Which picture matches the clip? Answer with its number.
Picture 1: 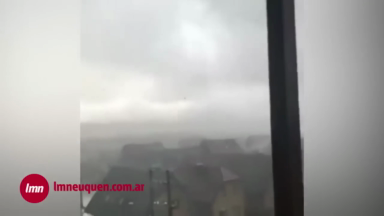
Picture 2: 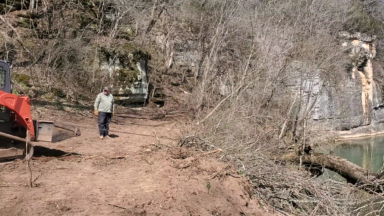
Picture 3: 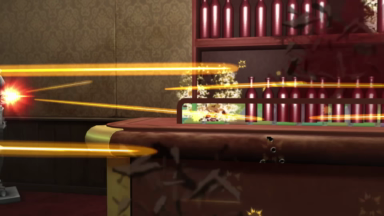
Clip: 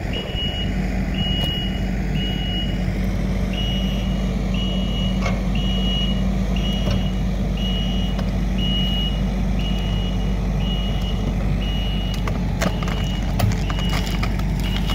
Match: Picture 2